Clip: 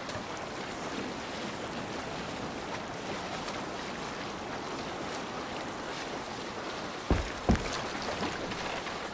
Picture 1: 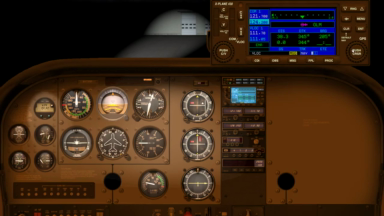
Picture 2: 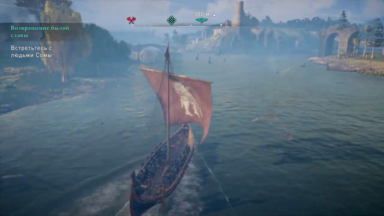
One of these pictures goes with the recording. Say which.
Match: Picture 2